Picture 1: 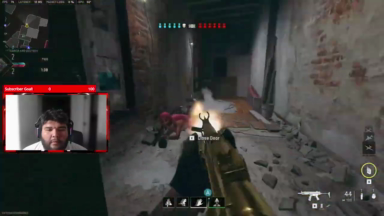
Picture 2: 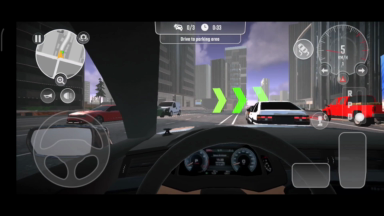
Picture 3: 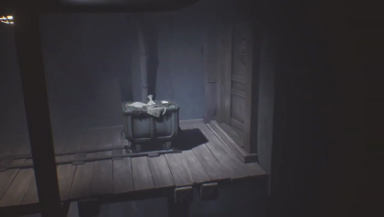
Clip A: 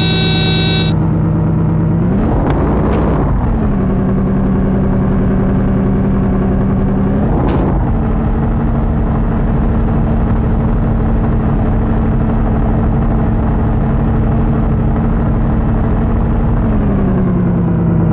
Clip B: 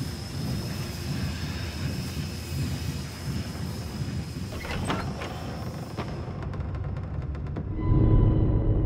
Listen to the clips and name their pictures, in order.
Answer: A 2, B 3